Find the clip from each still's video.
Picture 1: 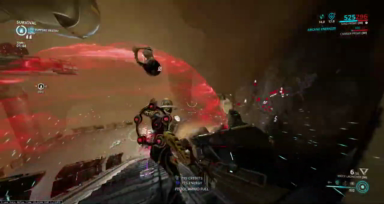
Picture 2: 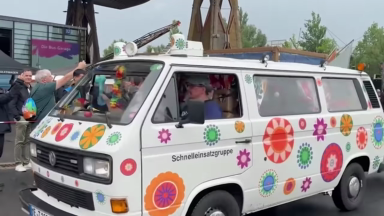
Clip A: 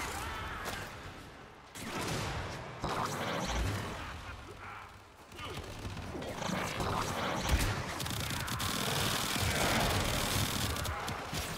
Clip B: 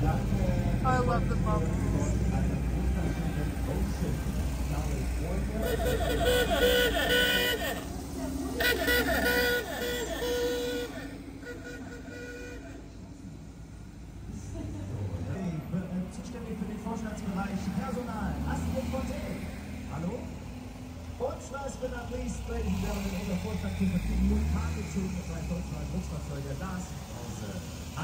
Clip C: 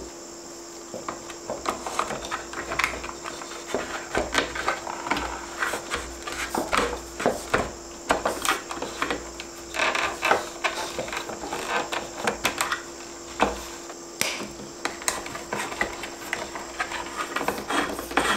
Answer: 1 A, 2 B